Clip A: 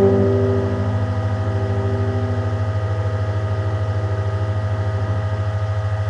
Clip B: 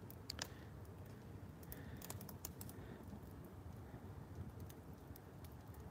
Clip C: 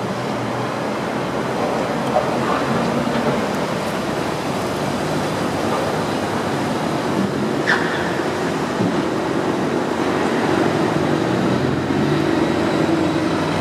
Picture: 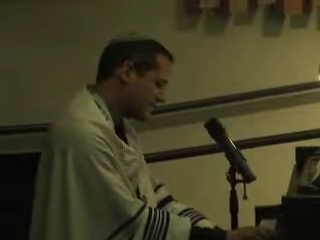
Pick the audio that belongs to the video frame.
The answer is A